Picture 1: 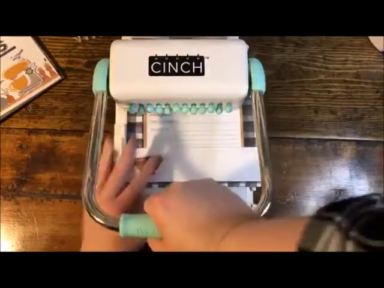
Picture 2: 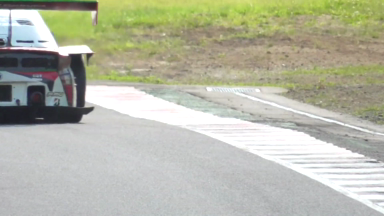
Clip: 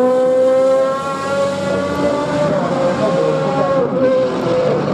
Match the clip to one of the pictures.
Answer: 2